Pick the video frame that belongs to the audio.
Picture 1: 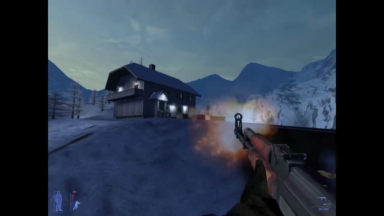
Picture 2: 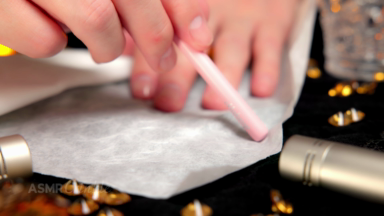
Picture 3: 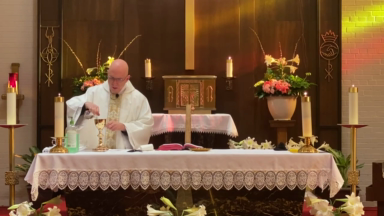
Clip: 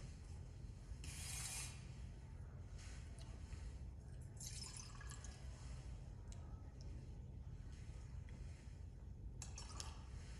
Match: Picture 3